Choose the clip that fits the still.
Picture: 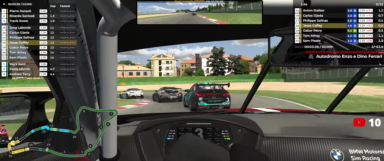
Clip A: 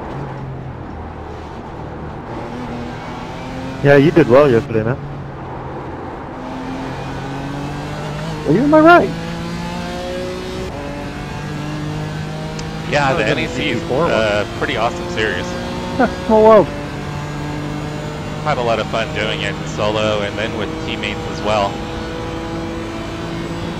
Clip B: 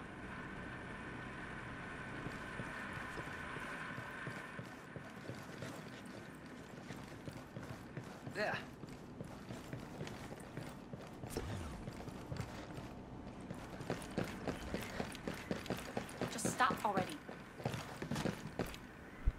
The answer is A